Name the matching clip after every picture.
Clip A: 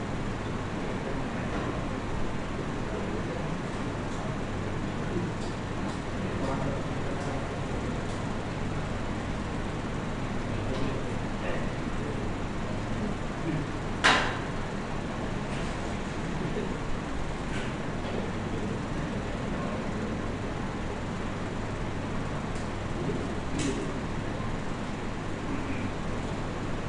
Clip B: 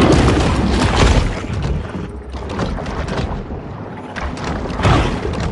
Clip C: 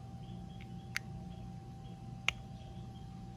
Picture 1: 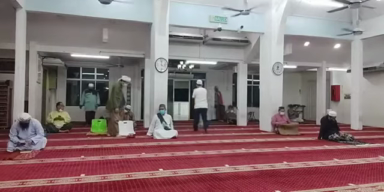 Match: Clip A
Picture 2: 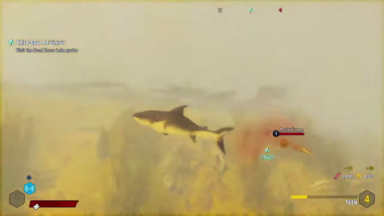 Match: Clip B